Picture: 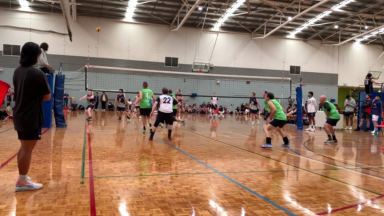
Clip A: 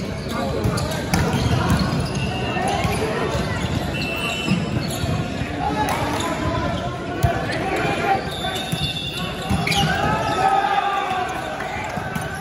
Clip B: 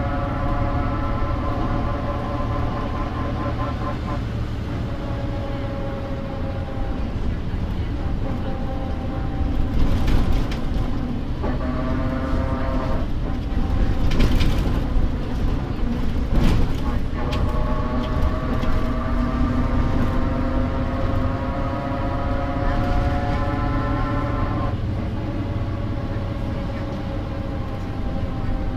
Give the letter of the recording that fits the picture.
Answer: A